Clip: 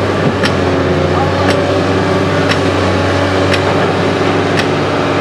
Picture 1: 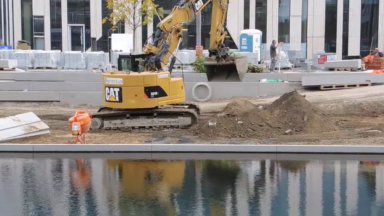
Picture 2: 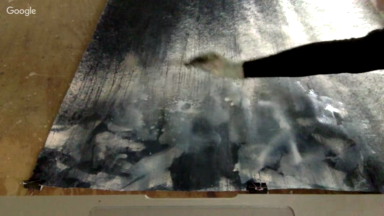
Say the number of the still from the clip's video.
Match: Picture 1